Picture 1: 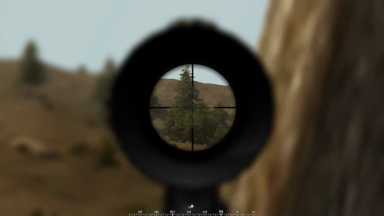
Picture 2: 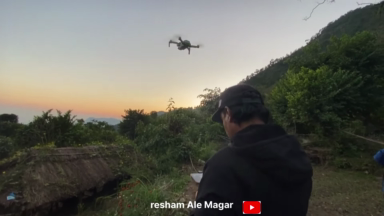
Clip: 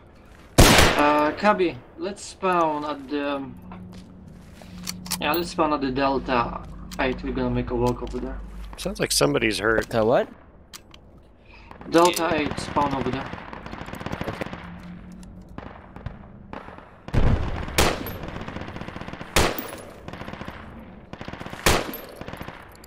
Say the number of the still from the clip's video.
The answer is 1